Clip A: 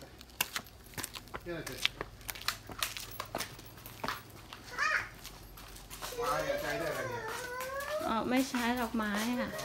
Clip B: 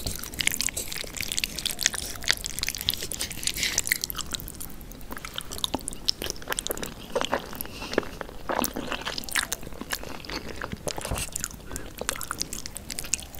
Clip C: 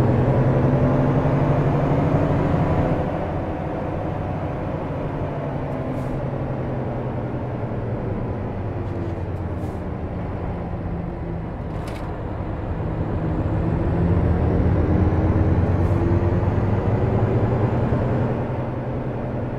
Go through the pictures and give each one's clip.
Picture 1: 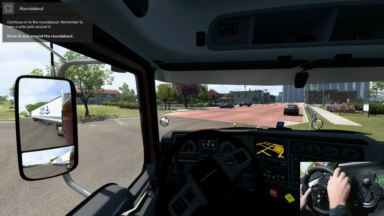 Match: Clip C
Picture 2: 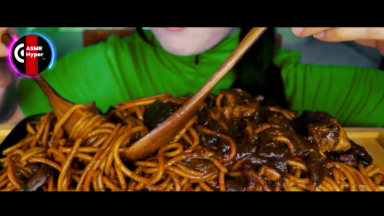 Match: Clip B